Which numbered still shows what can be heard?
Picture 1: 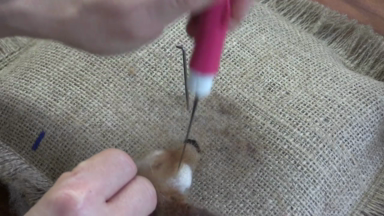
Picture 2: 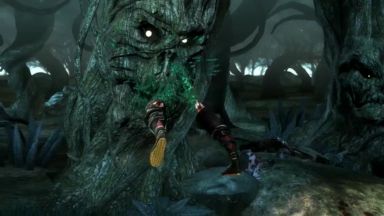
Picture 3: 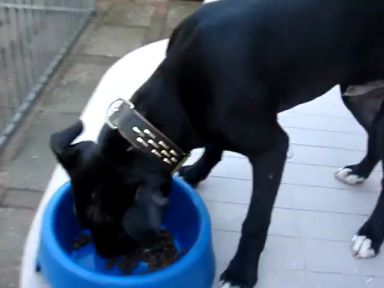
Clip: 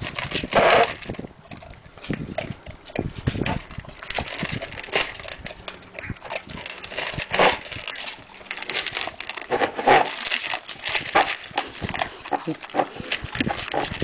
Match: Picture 3